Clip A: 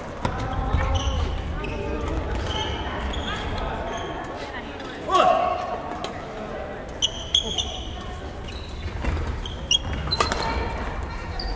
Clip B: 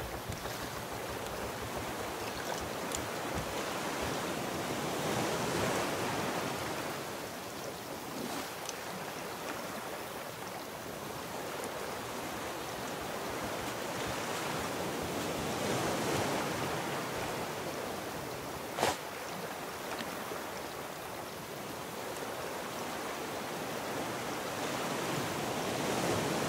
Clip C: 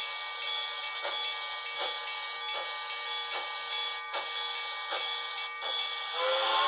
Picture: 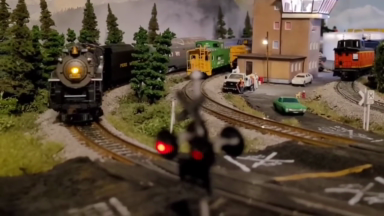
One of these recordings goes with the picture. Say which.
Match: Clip C